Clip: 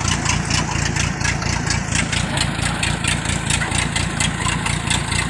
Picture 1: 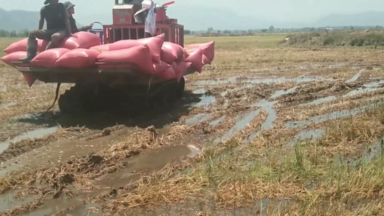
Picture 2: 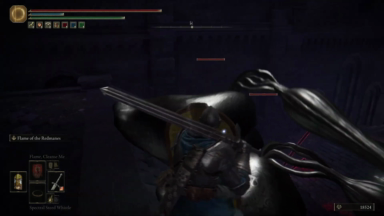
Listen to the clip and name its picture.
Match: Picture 1